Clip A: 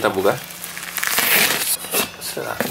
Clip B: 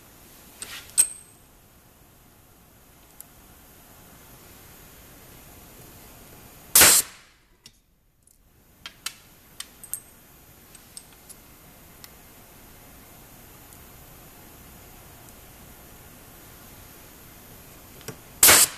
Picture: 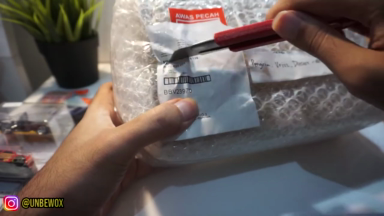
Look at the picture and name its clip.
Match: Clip A